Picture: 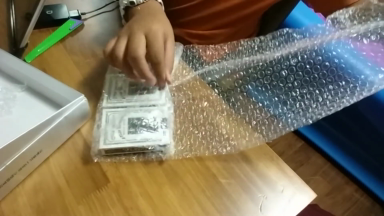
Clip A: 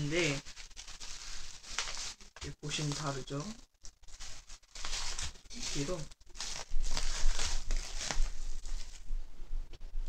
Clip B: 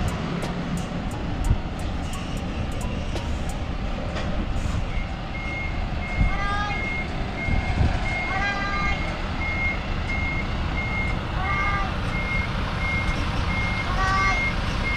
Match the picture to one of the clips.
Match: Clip A